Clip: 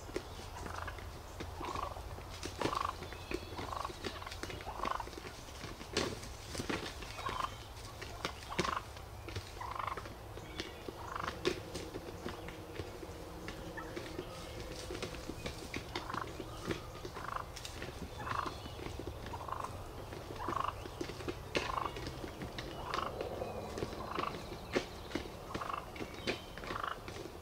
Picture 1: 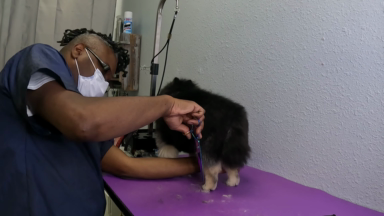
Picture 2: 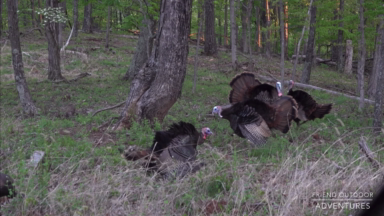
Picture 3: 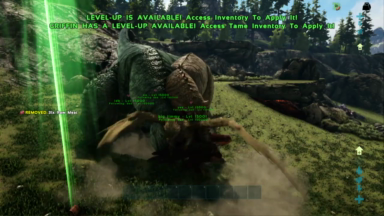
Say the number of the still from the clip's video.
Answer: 2